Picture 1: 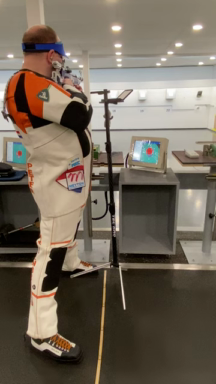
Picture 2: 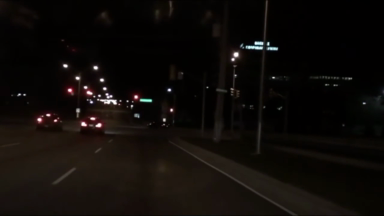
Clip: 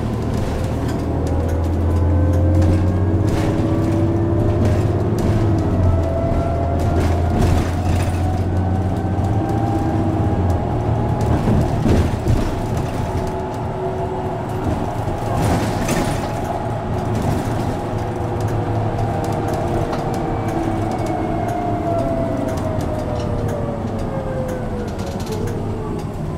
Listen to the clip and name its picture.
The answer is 2